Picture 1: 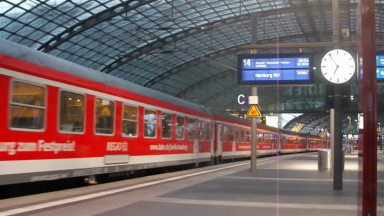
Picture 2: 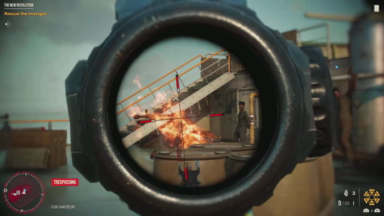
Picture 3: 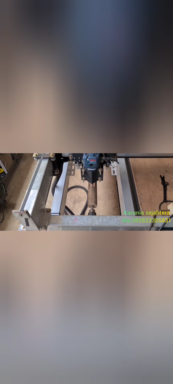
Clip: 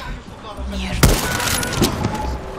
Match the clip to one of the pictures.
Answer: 2